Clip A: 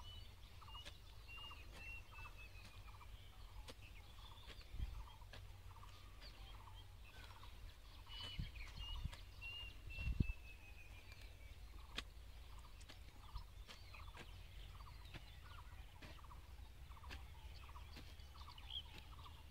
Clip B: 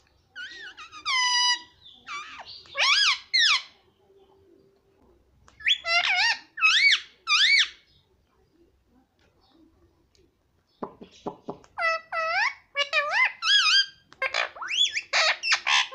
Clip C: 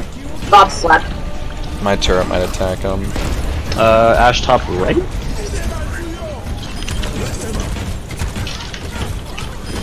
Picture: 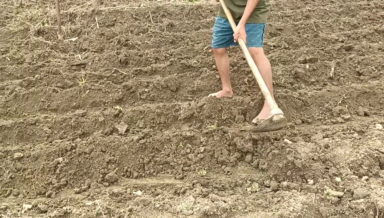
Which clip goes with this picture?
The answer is A